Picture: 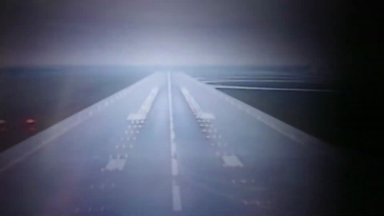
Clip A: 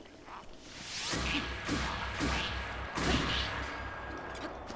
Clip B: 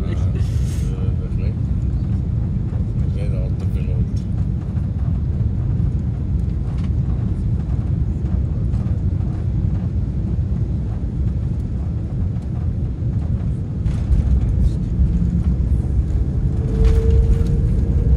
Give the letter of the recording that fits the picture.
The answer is B